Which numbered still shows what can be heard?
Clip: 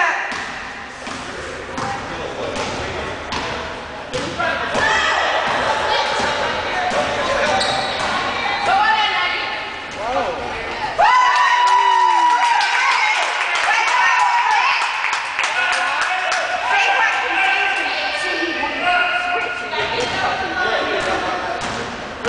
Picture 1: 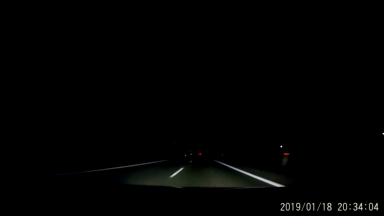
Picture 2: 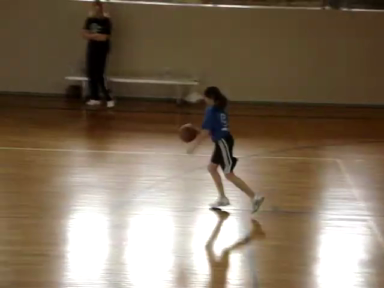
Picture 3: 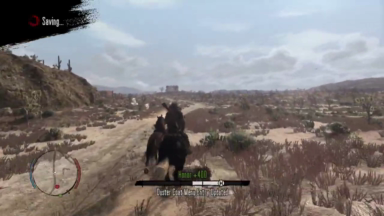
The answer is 2